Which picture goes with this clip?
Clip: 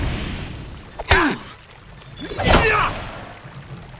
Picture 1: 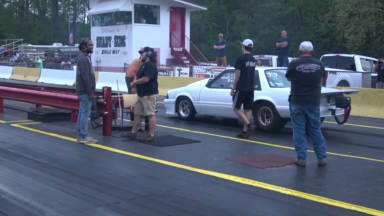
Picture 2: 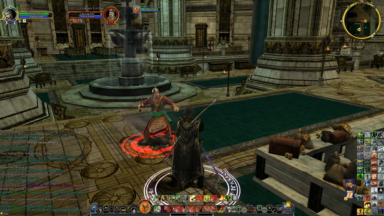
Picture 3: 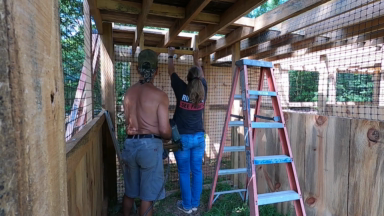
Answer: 2